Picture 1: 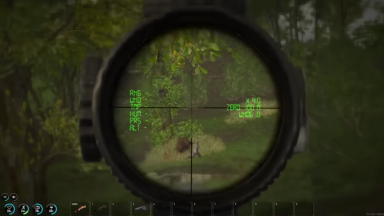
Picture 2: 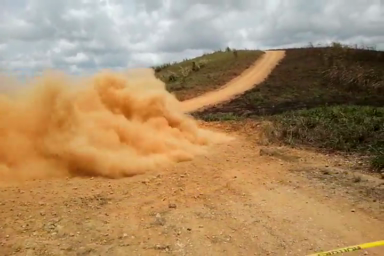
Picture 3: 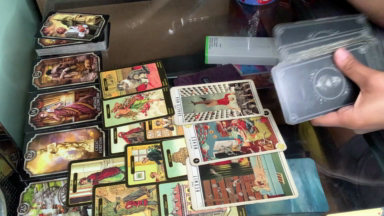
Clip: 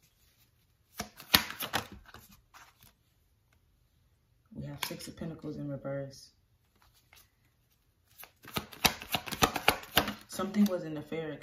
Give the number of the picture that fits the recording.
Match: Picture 3